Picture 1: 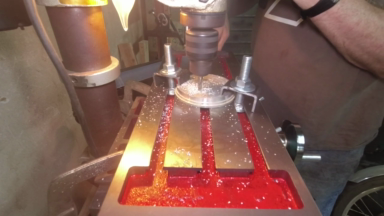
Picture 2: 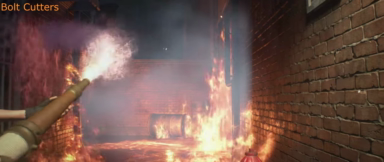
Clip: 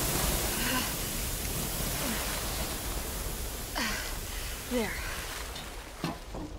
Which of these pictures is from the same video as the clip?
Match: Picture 2